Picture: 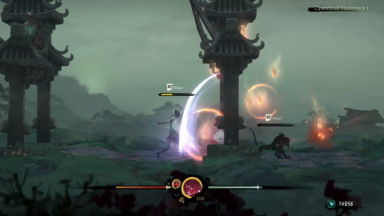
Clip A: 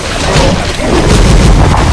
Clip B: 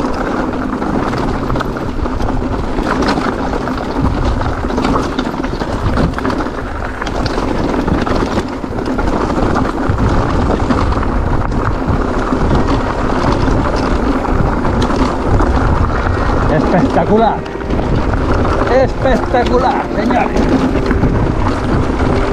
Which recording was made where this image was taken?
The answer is A